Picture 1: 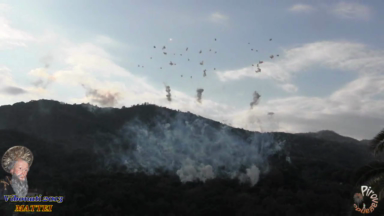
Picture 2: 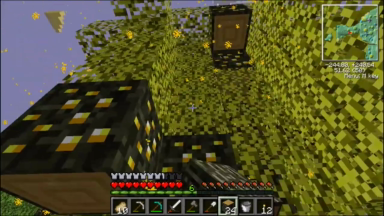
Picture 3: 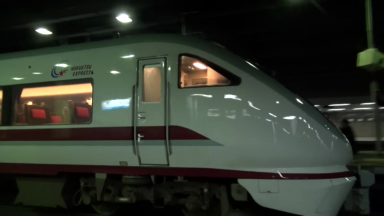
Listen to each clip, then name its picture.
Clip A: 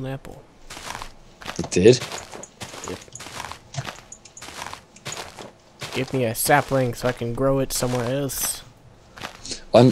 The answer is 2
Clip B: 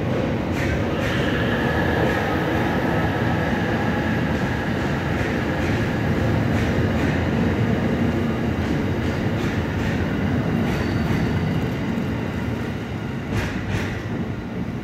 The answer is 3